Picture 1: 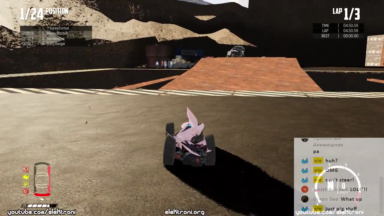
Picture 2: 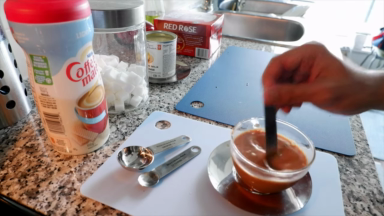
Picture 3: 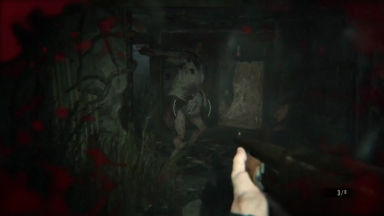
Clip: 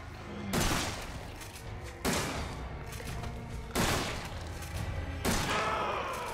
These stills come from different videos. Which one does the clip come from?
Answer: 3